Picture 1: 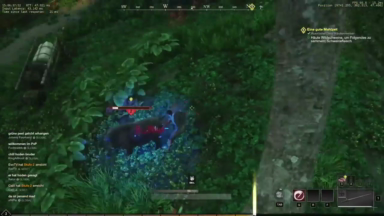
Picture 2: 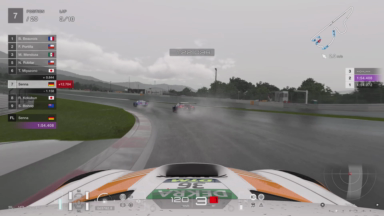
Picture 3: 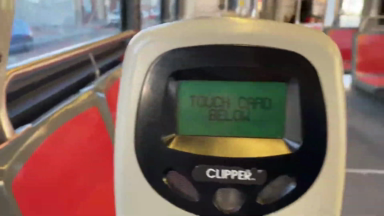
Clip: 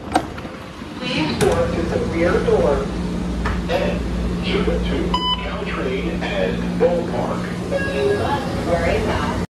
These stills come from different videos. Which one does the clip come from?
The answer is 3